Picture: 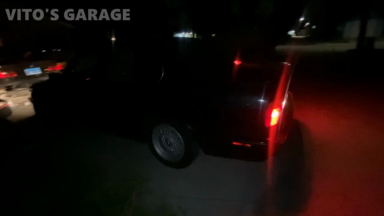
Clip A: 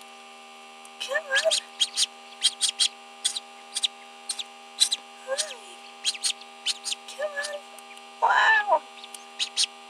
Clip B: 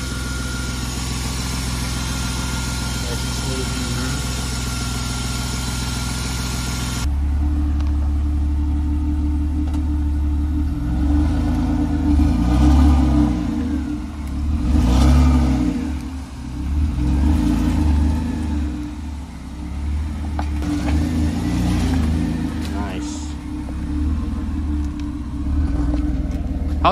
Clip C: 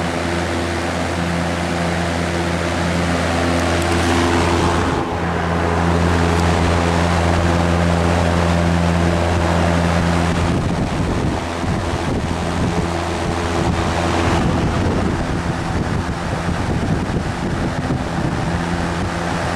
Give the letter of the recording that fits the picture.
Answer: B